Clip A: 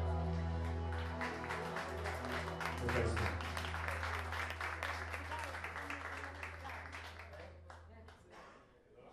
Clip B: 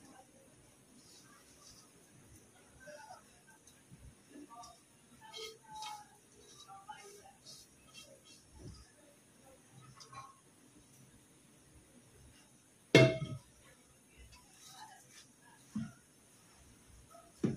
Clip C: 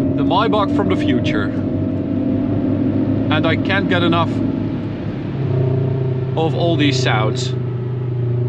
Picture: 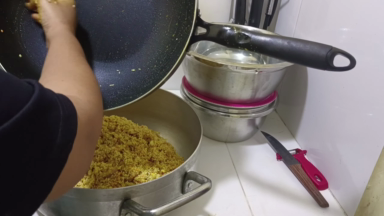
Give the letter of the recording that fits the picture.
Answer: B